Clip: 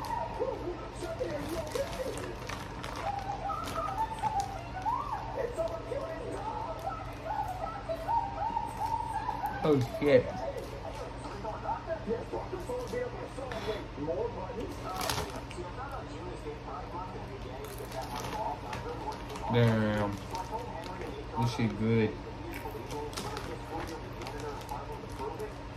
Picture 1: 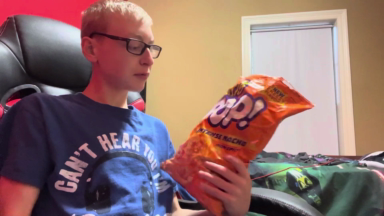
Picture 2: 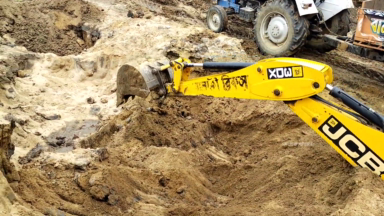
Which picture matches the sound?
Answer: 1